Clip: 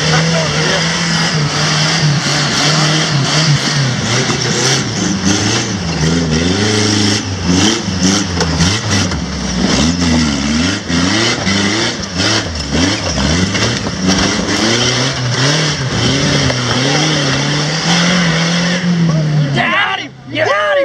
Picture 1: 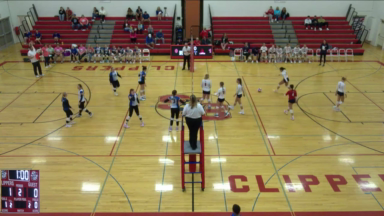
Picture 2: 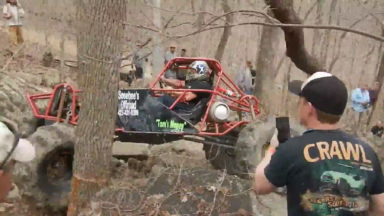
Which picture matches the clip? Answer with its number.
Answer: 2